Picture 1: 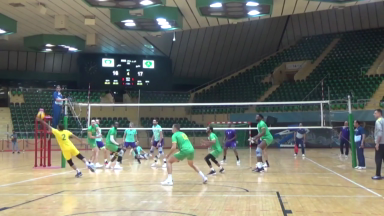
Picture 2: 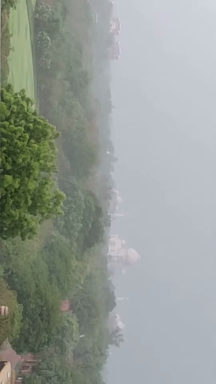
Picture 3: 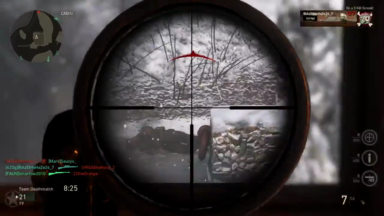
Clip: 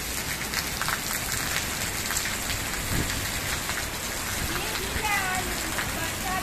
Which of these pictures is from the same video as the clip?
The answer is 2